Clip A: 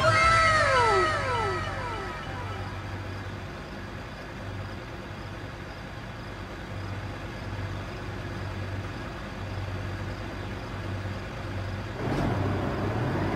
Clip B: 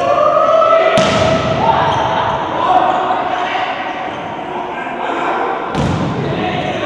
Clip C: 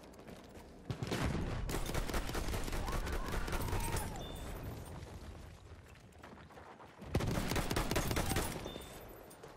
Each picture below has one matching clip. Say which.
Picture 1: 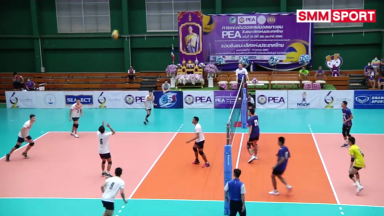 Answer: B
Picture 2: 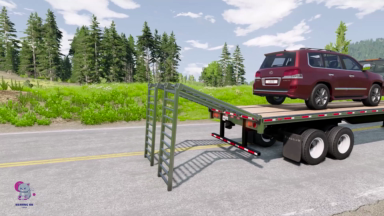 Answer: A